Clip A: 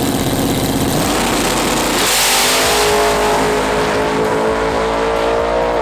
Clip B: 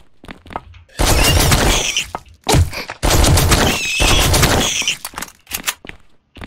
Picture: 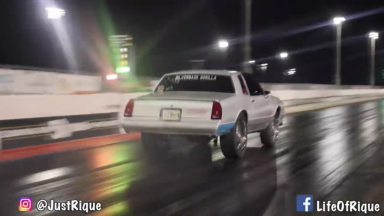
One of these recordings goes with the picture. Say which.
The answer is A